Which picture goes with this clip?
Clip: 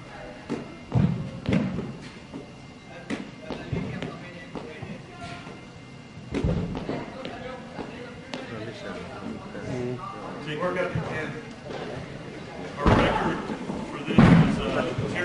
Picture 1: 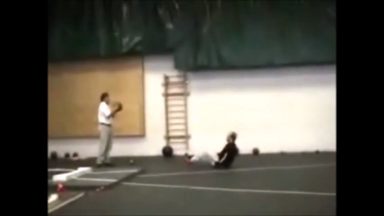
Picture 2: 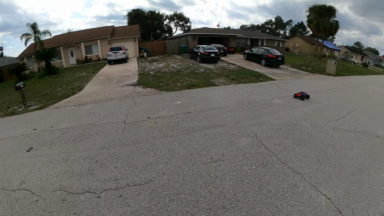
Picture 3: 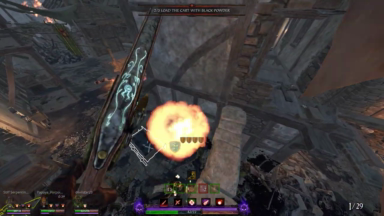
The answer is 1